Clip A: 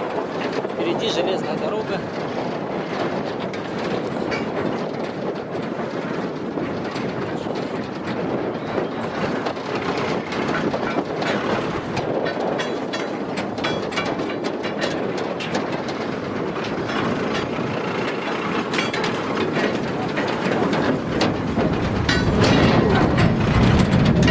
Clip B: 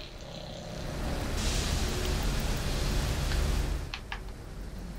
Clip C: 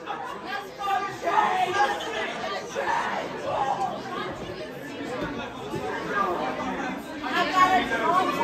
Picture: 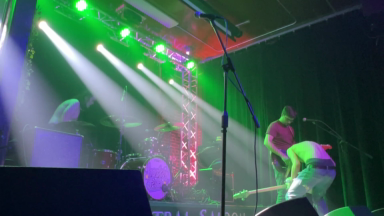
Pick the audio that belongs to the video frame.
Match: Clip C